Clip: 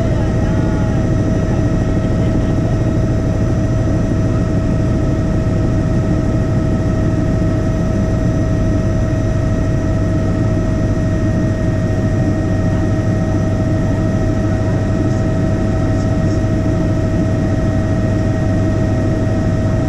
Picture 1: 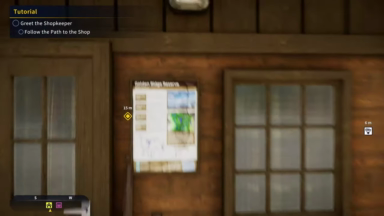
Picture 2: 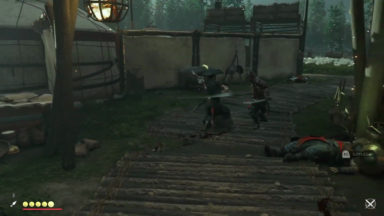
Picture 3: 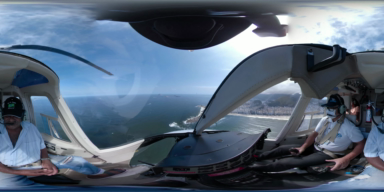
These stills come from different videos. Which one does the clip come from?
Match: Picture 3